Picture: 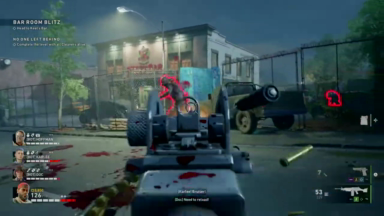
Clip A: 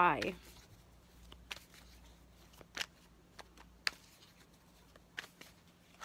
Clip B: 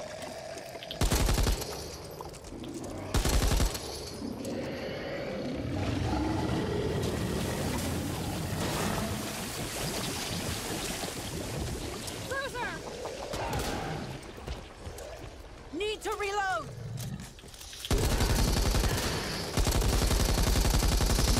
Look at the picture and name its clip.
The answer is B